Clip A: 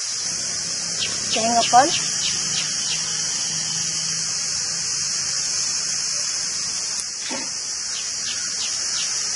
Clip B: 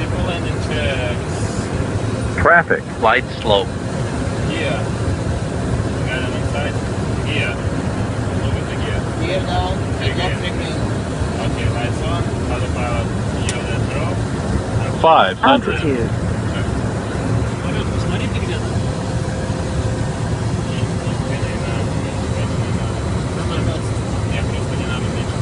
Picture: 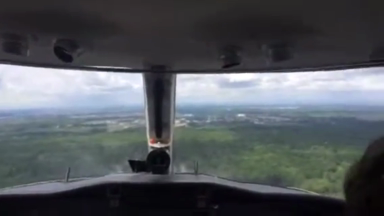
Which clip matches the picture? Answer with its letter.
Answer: B